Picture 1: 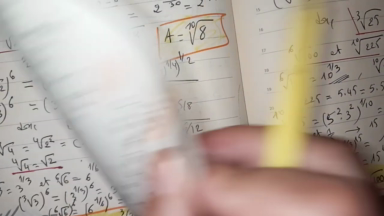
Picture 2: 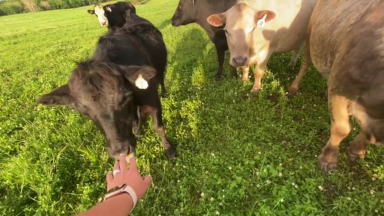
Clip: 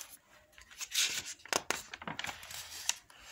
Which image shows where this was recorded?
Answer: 1